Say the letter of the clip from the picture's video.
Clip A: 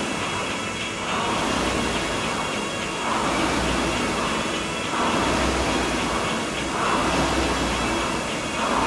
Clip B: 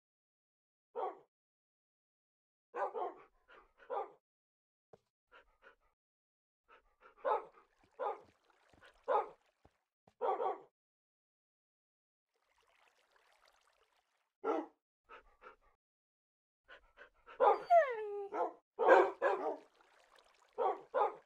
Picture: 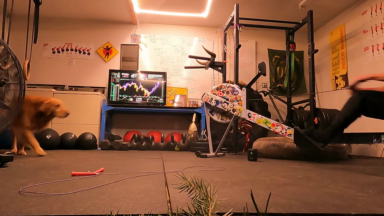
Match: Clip A